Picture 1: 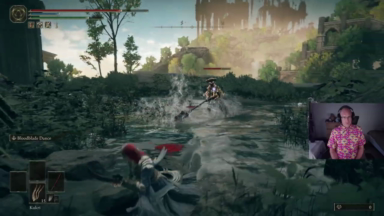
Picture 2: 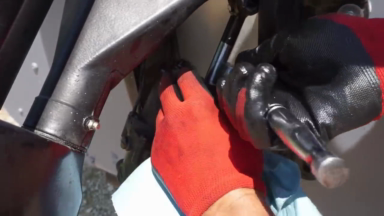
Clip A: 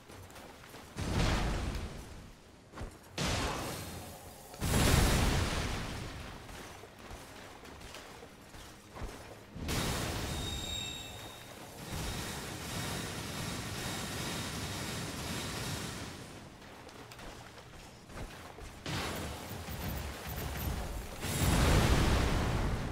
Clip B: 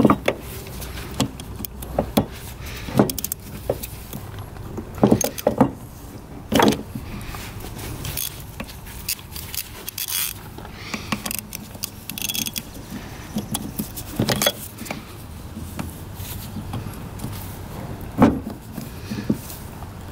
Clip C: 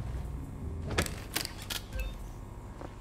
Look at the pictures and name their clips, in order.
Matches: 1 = A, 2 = B